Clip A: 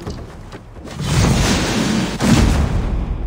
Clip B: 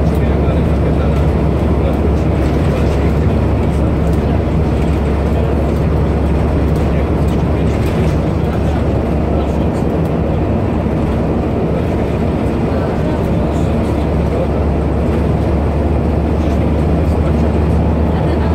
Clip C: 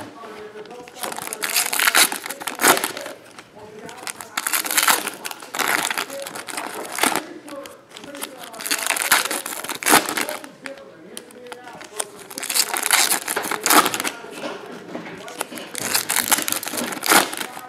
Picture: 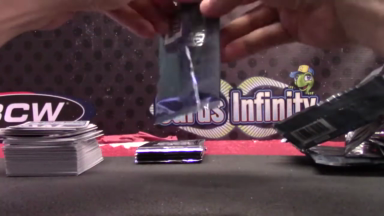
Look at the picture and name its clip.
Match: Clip C